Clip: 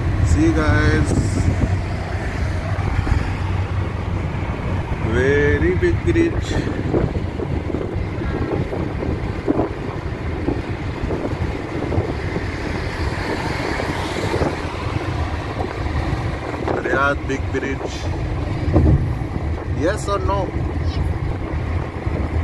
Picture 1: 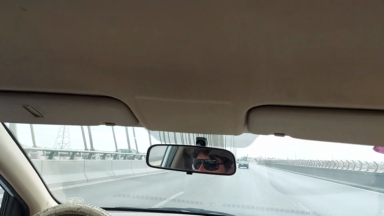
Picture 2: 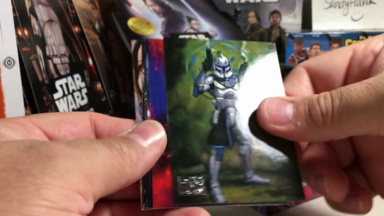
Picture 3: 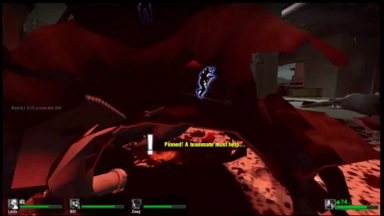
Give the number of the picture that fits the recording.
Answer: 1